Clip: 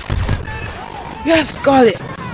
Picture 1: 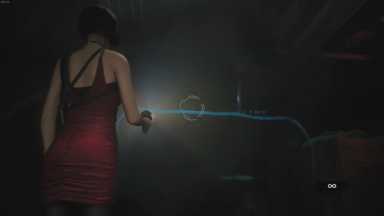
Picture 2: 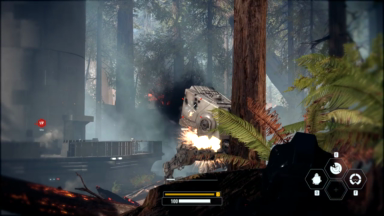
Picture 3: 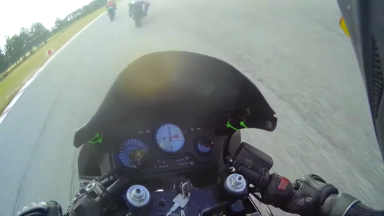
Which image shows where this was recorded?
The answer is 2